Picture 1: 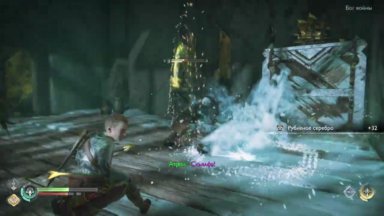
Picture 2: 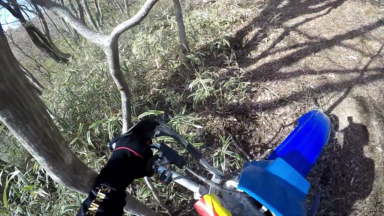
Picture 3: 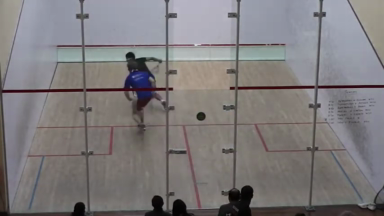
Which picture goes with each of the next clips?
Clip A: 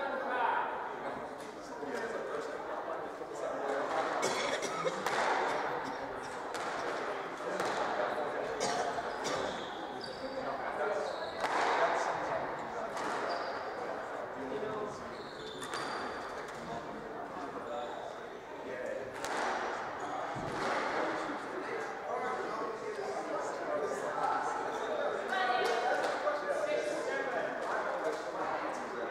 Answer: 3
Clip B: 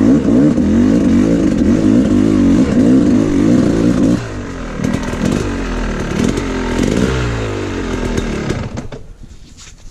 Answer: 2